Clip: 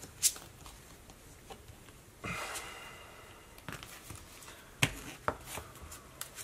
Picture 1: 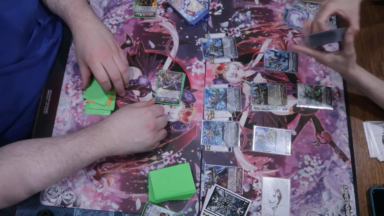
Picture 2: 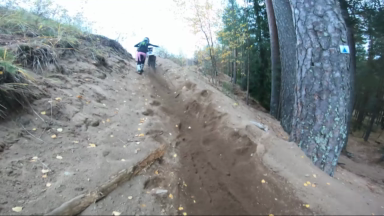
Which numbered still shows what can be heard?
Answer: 1